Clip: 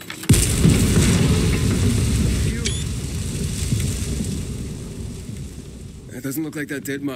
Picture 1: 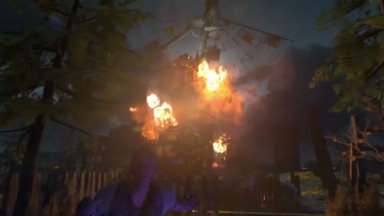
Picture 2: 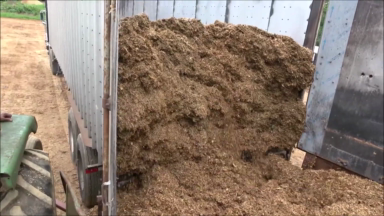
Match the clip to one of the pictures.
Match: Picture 1